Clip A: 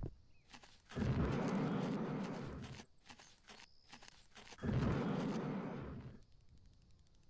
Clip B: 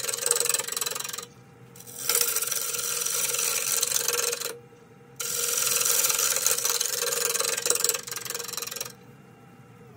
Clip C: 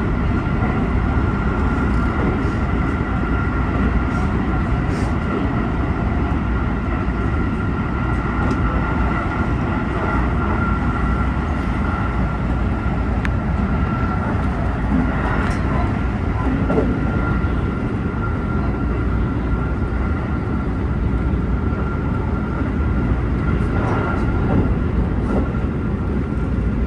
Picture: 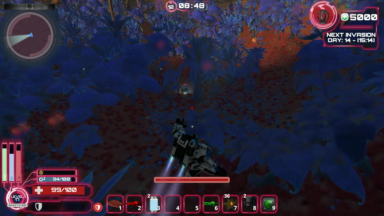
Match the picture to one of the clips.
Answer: A